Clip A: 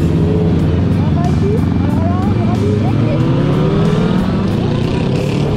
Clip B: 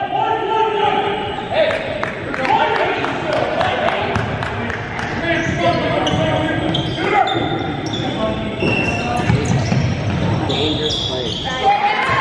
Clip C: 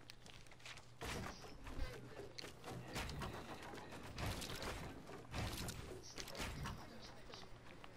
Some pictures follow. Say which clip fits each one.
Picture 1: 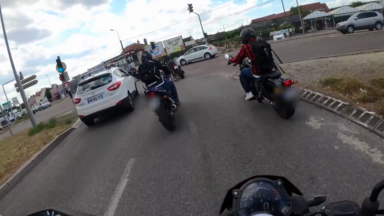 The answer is A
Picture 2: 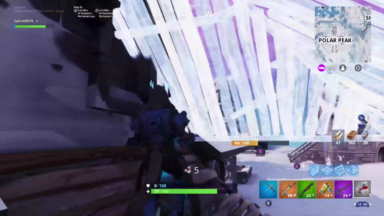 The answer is C